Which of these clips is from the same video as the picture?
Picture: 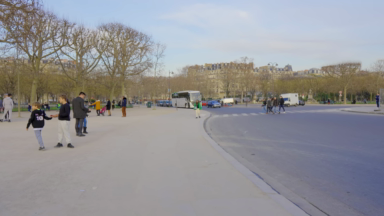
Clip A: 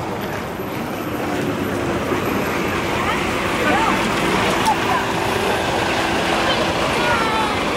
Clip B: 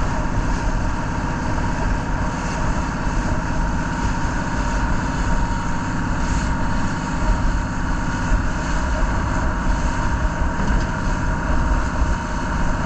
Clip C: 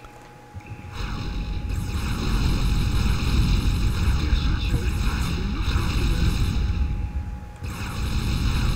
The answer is A